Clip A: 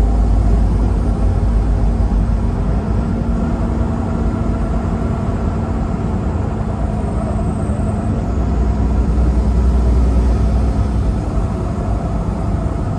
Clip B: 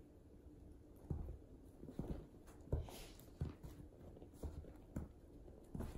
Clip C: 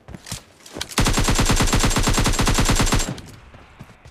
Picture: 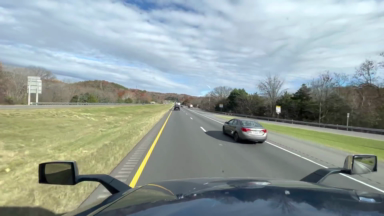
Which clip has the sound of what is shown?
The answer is A